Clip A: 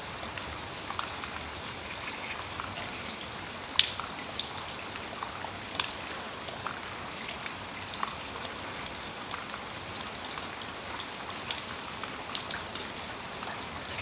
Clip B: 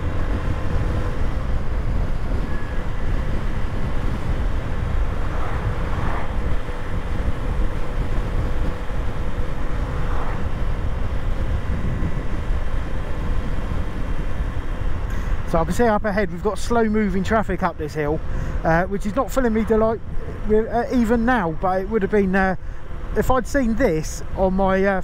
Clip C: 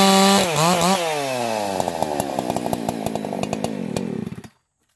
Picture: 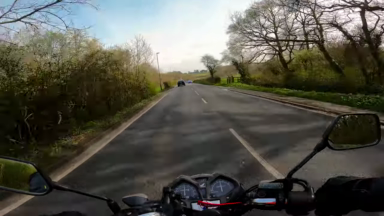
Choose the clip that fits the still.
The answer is B